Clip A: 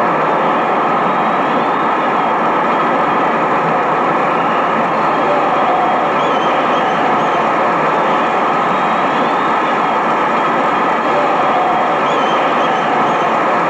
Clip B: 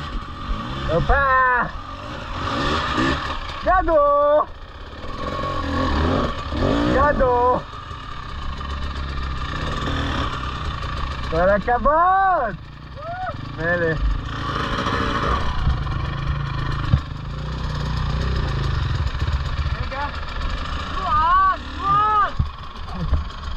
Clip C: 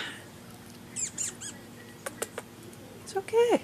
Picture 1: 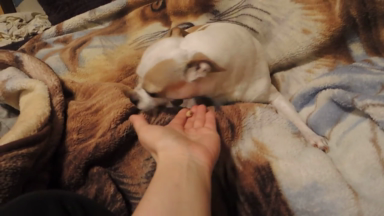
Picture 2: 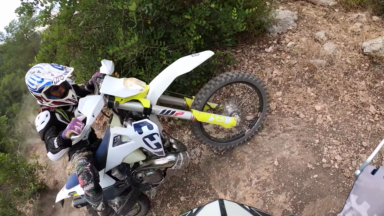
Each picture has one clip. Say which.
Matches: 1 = C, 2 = B